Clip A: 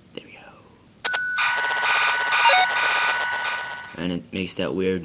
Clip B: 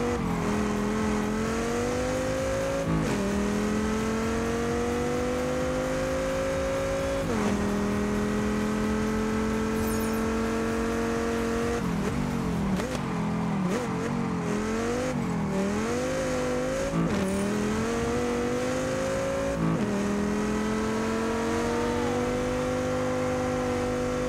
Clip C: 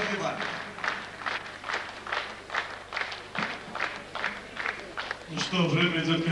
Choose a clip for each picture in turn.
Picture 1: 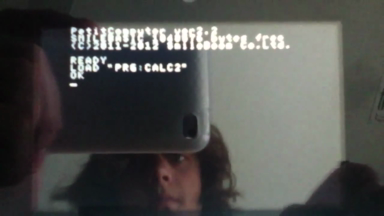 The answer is A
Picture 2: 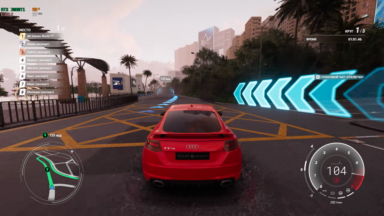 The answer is B